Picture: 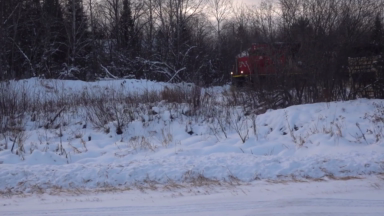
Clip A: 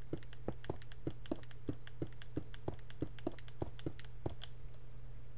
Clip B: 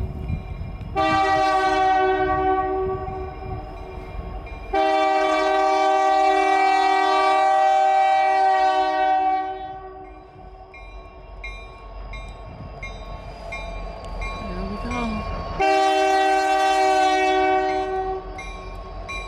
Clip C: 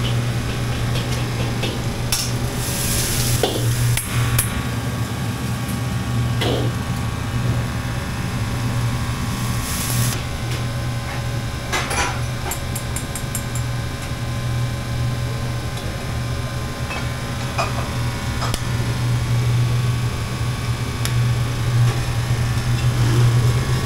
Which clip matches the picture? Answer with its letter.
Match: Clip B